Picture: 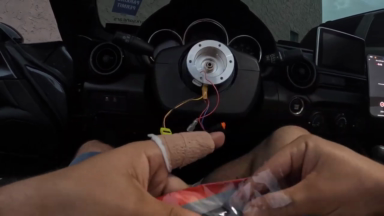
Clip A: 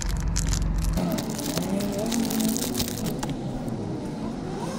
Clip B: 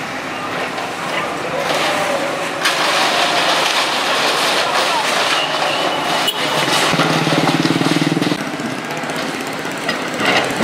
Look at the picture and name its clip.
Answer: A